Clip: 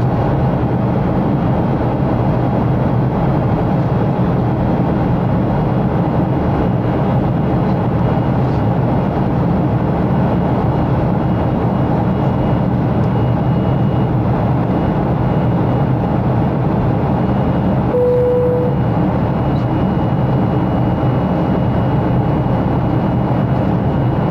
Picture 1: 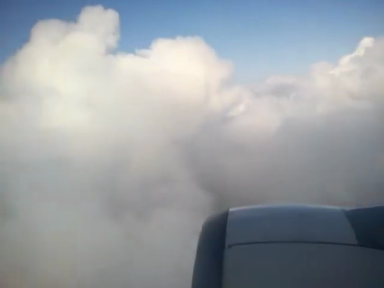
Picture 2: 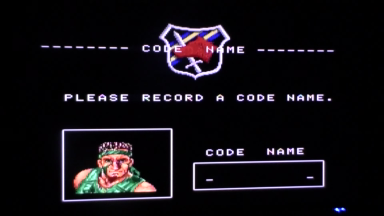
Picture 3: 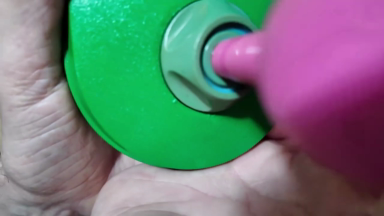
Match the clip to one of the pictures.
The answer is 1